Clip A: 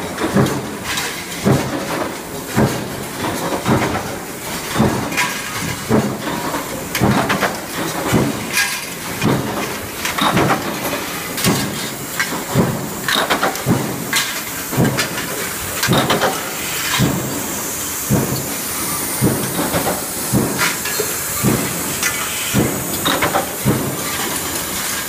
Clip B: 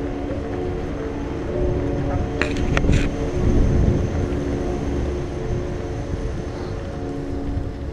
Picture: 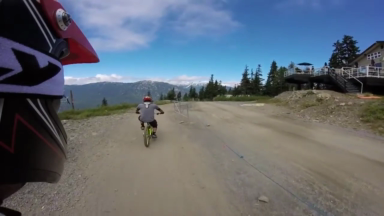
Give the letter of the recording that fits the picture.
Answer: B